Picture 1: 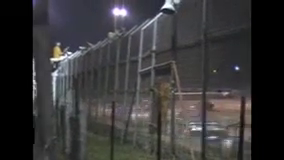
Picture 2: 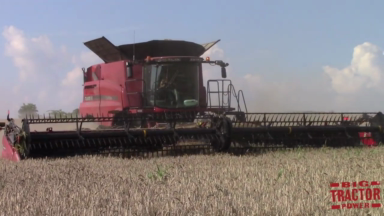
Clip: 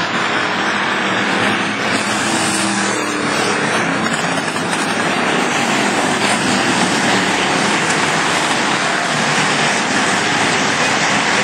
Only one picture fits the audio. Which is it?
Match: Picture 1